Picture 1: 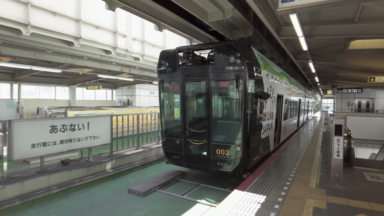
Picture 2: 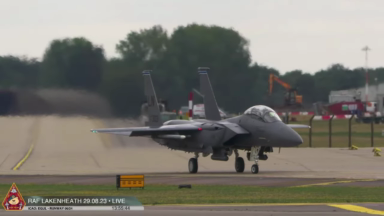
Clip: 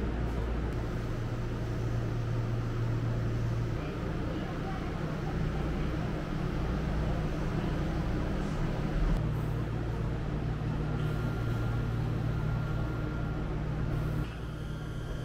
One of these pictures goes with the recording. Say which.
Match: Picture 1